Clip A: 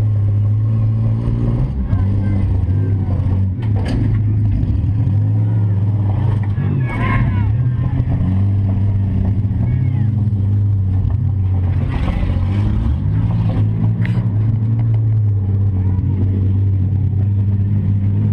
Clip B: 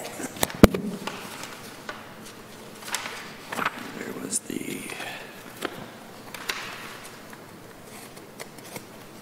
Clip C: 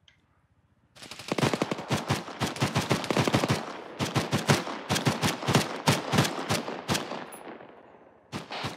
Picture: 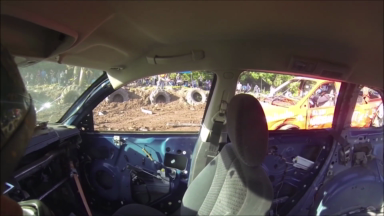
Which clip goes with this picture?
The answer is A